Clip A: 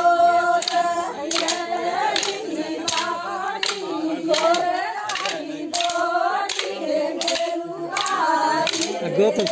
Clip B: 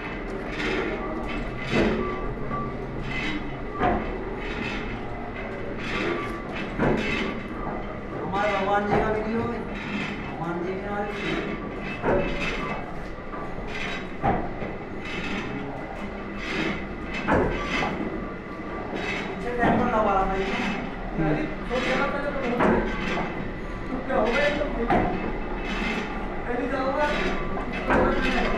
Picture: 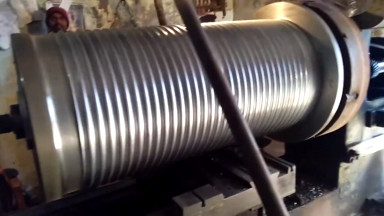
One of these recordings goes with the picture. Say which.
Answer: B